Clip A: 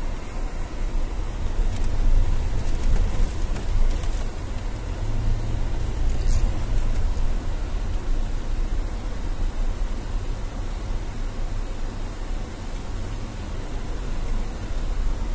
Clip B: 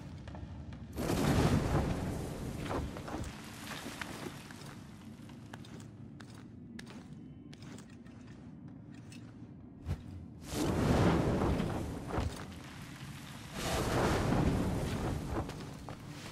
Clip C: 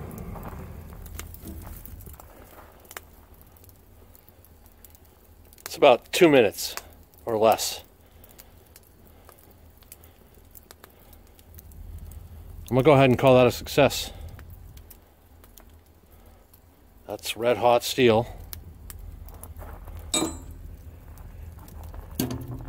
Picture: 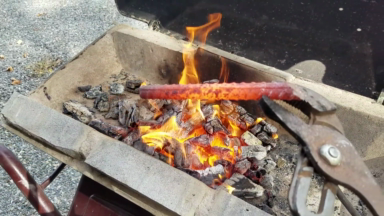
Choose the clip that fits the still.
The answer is C